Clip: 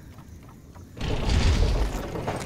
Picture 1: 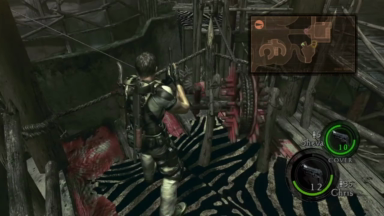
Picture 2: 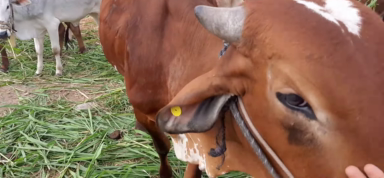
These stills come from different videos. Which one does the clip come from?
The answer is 1